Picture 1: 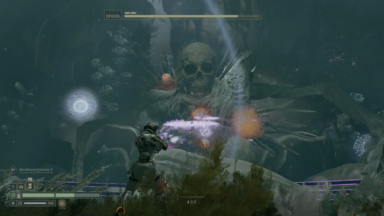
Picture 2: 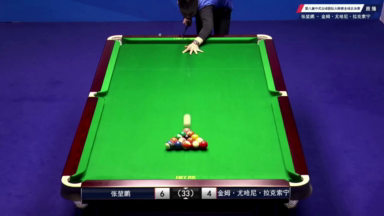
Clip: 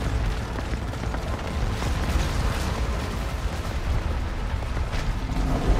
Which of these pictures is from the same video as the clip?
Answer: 1